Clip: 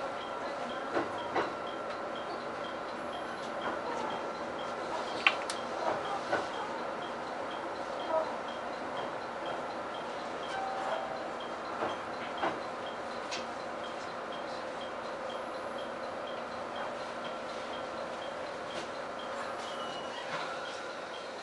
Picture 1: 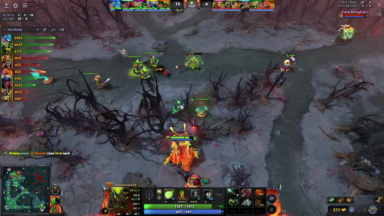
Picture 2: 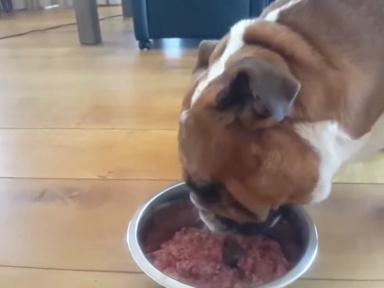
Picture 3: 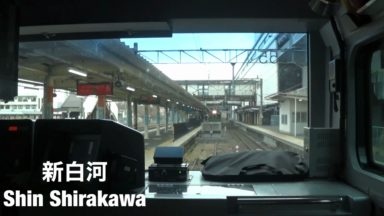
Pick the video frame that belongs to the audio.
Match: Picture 3